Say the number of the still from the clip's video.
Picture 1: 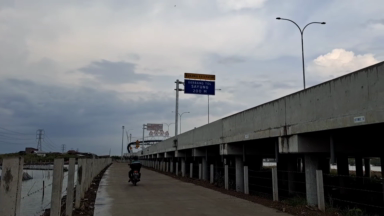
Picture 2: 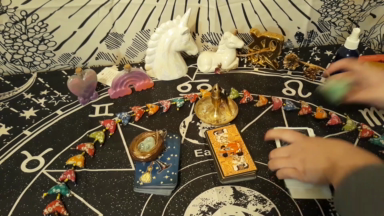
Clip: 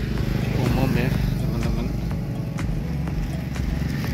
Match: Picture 1